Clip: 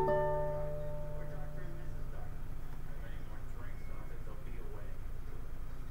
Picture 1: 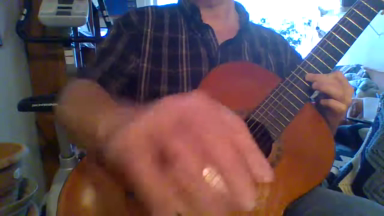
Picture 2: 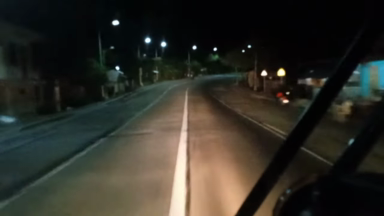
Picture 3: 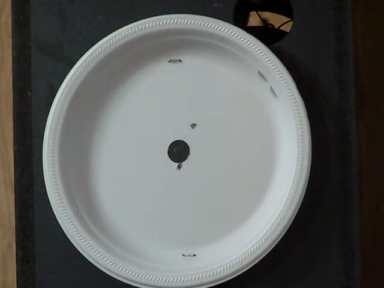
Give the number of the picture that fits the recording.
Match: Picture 1